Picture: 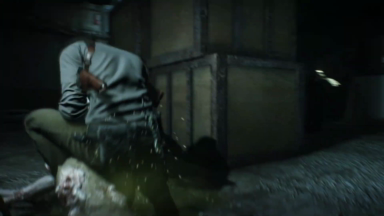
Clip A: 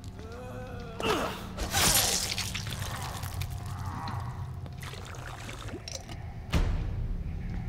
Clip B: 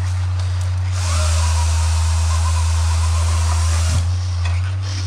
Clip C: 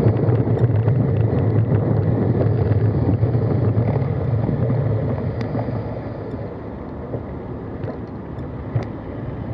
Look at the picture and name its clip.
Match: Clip A